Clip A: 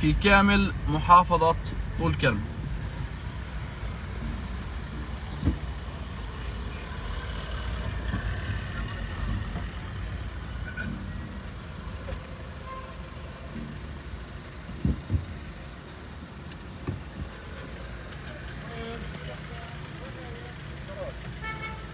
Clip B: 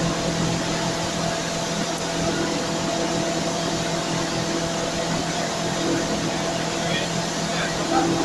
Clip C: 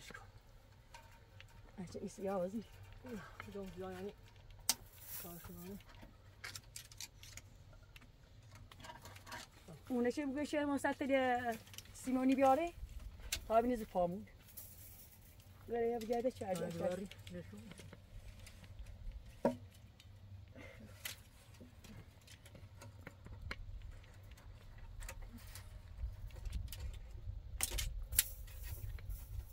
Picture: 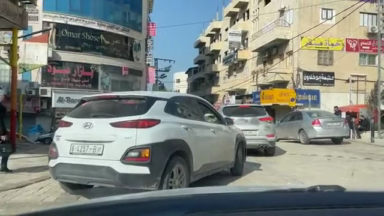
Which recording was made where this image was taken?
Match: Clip A